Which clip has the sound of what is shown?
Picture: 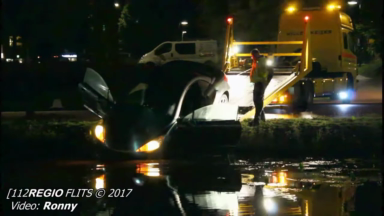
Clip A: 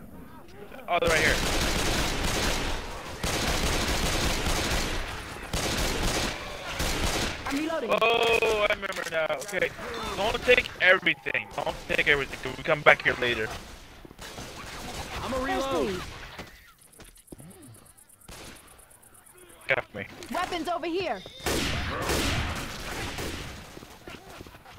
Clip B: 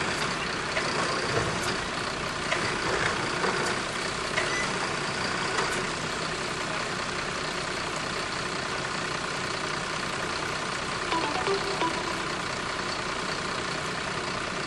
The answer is B